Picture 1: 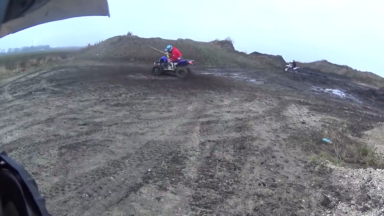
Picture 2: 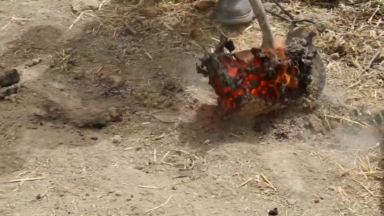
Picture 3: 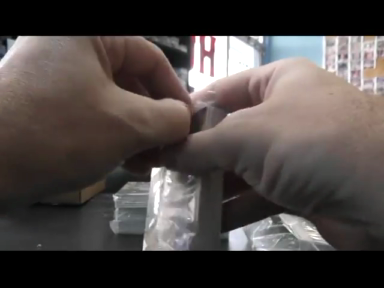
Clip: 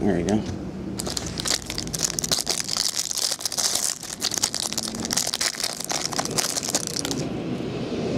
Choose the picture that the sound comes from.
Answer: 3